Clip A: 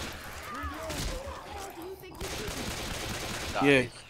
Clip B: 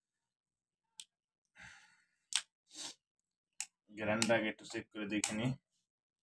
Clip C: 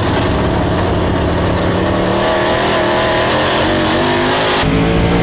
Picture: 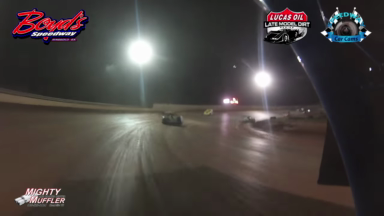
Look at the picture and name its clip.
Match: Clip C